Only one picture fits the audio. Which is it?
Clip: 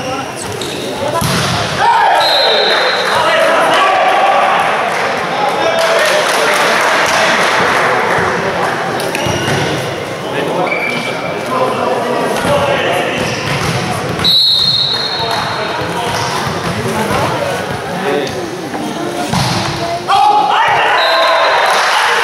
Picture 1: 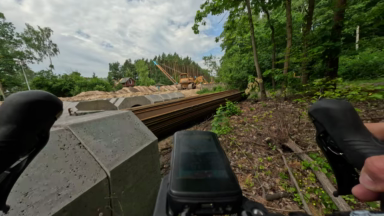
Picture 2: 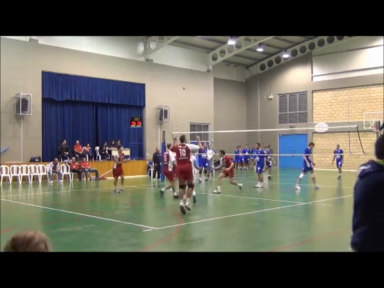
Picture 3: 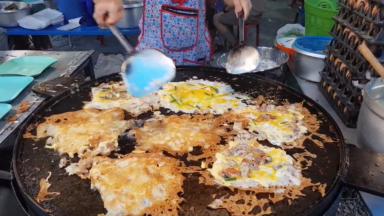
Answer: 2